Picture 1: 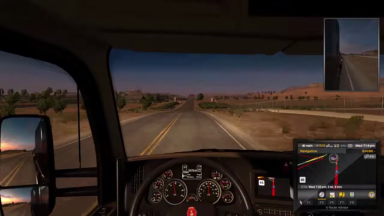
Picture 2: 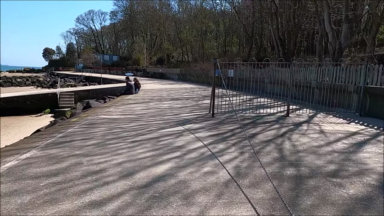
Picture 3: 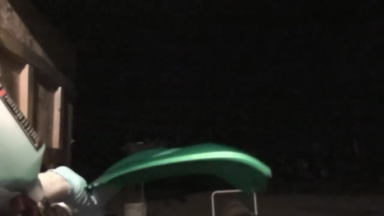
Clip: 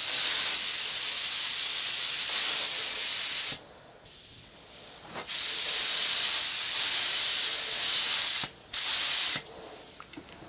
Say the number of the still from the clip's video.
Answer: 3